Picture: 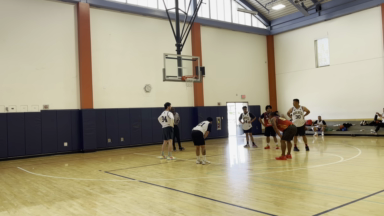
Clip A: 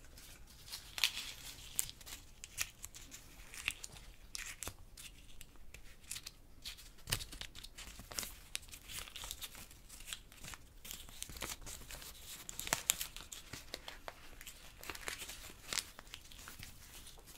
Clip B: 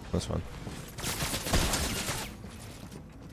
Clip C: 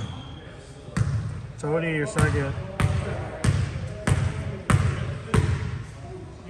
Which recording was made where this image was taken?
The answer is C